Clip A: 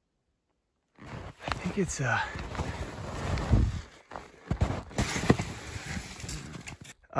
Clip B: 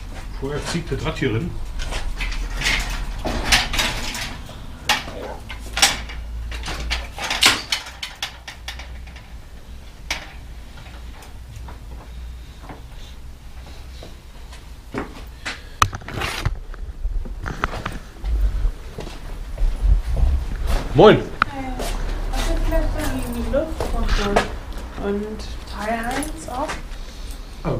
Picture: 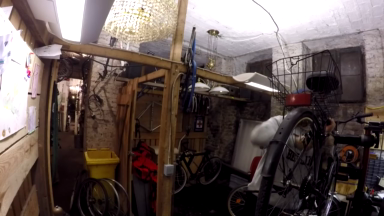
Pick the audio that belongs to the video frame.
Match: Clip B